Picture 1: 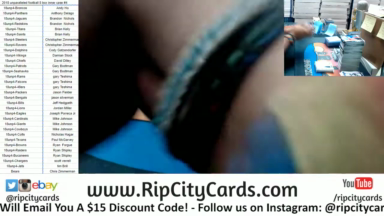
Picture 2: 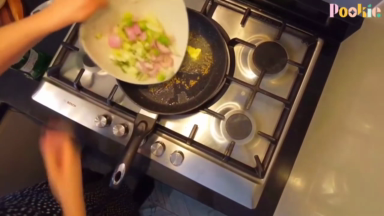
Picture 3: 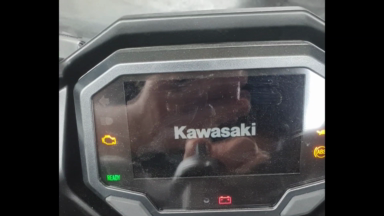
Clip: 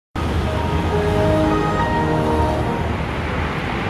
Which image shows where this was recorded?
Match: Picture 3